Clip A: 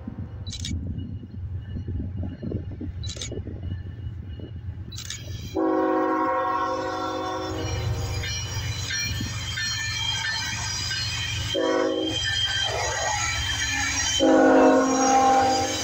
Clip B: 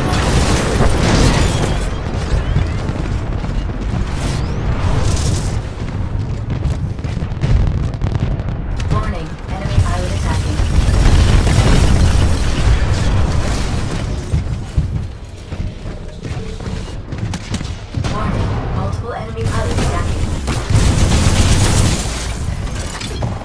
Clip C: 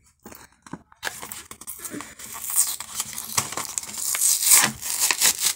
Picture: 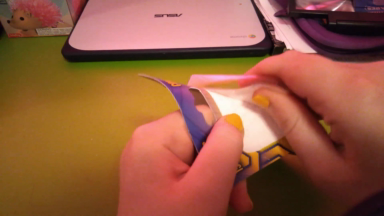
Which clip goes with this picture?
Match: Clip C